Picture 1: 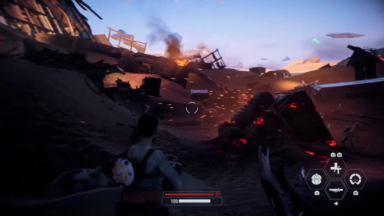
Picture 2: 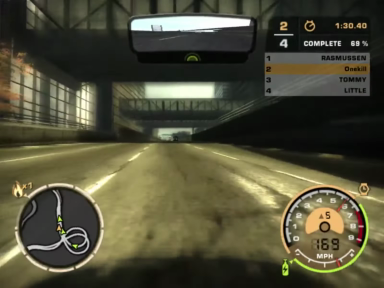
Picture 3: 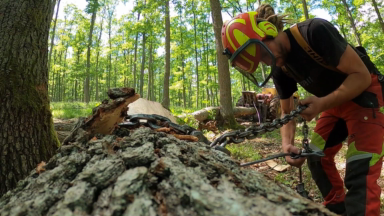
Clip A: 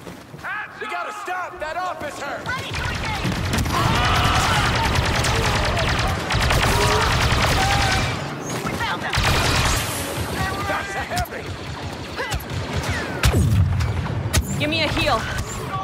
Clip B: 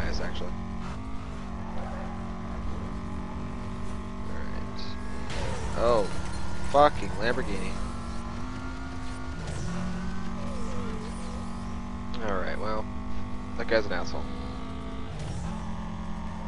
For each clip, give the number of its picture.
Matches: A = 1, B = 2